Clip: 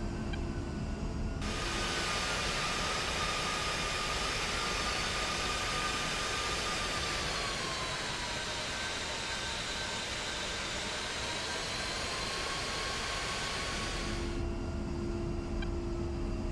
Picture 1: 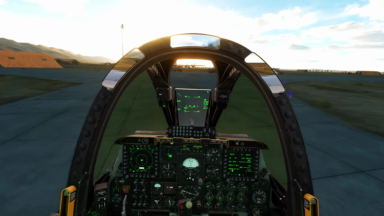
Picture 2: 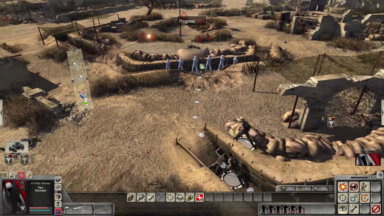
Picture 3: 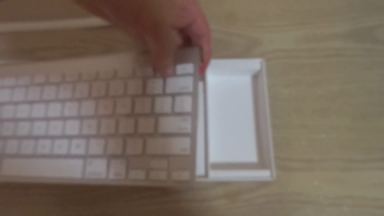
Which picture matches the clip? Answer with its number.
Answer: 1